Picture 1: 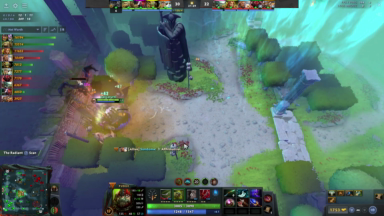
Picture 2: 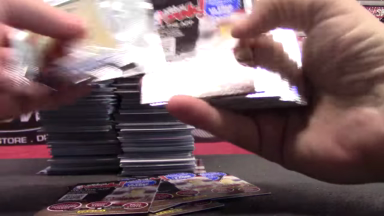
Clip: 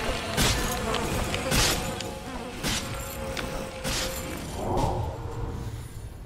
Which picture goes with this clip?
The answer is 1